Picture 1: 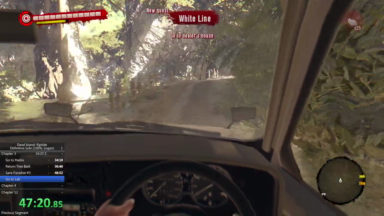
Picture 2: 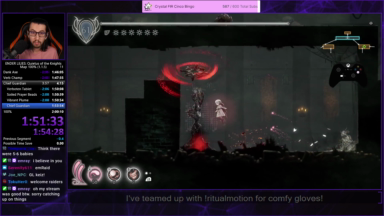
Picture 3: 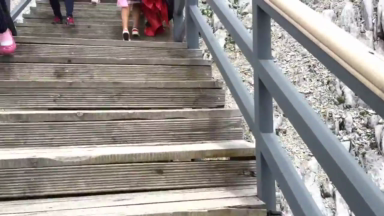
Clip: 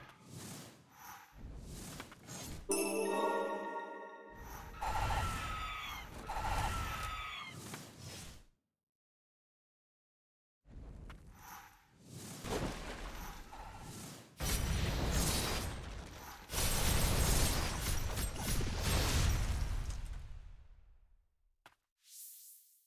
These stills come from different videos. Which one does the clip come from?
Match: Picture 2